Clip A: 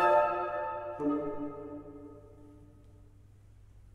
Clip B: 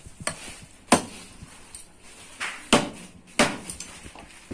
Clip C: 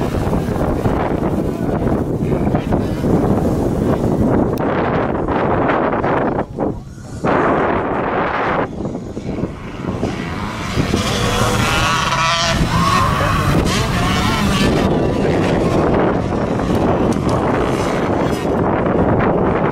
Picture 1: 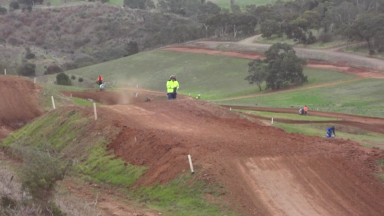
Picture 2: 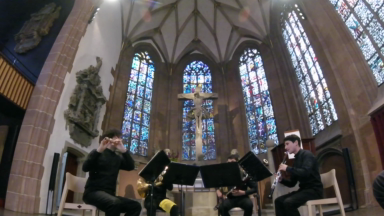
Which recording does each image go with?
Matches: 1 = C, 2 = A